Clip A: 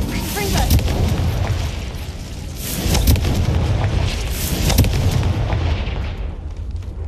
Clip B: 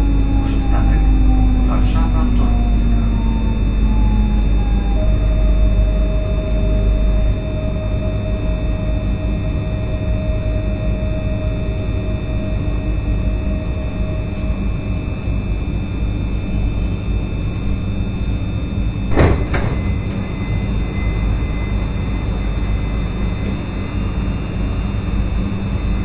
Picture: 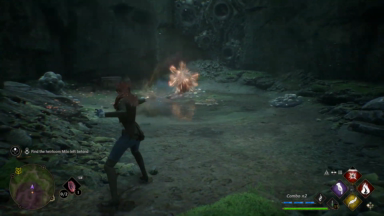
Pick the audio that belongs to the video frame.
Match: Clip A